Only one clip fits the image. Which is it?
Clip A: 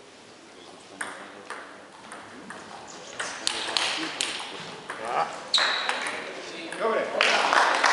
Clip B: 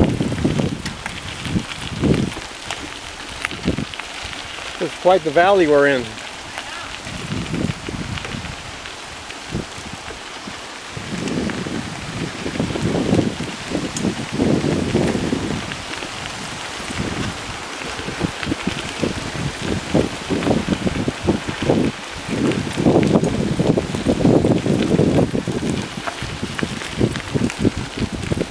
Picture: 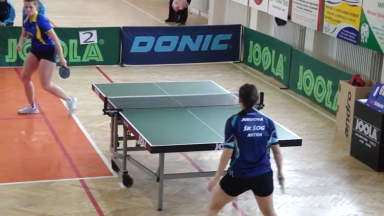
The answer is A